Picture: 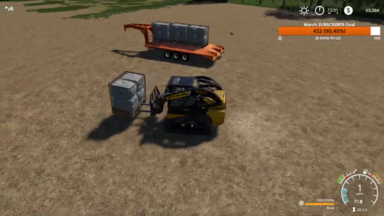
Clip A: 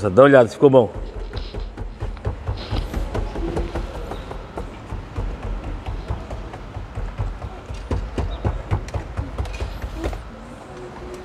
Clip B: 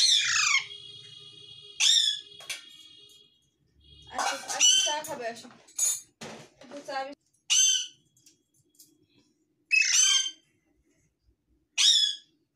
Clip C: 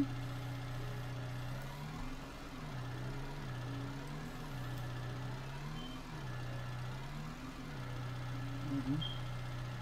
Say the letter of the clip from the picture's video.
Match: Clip C